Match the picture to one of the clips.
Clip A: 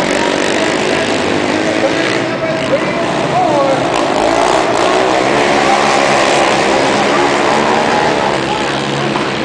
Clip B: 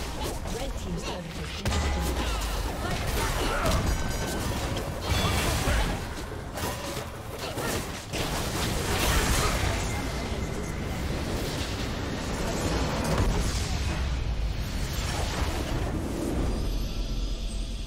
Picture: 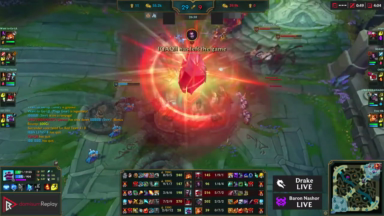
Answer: B